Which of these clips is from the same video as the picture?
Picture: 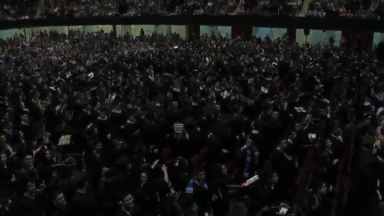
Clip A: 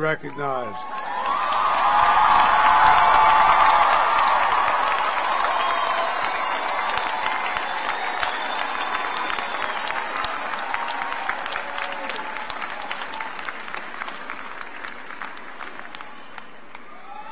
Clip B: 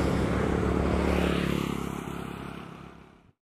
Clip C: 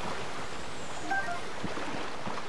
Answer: A